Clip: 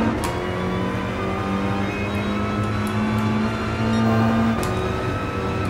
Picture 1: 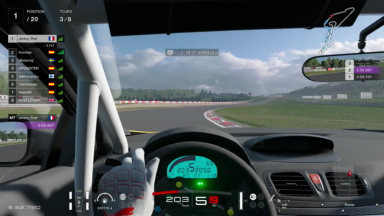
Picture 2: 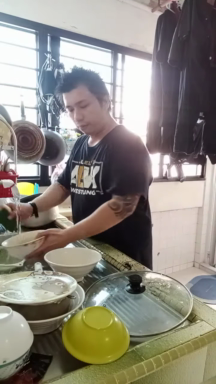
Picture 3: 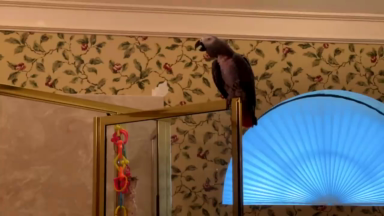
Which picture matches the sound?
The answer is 1